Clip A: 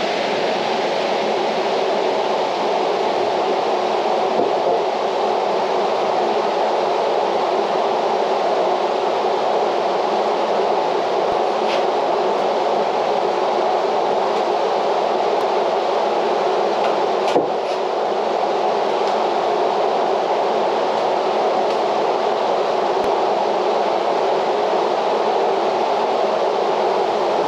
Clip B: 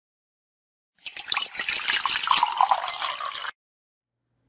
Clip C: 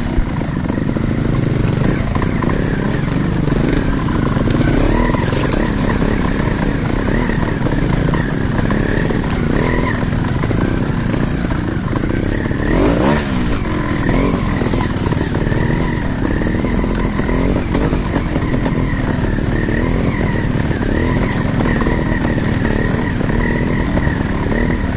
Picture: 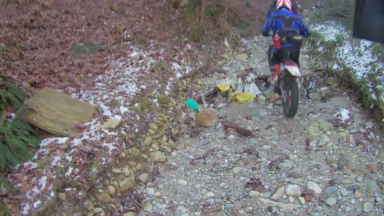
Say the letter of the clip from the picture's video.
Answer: C